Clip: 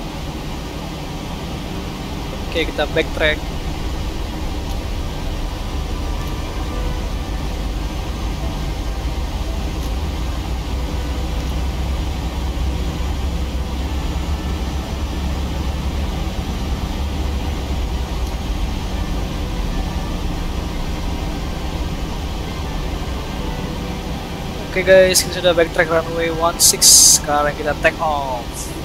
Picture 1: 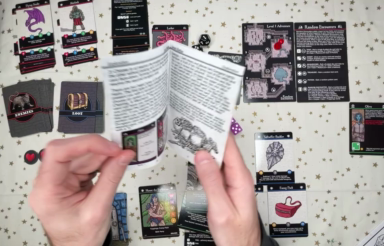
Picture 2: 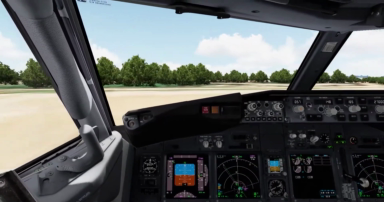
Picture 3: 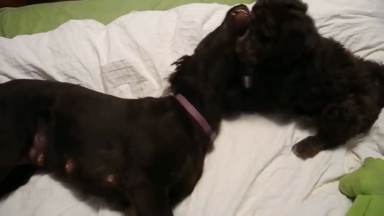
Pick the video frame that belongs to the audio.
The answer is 2